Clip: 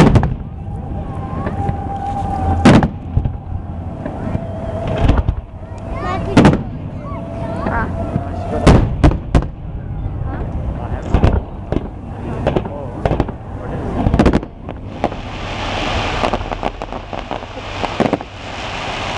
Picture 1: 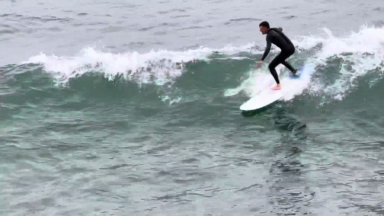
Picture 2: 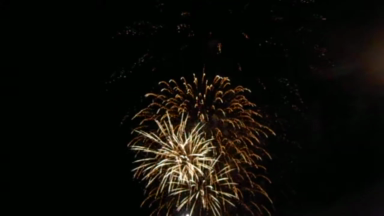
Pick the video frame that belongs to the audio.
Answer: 2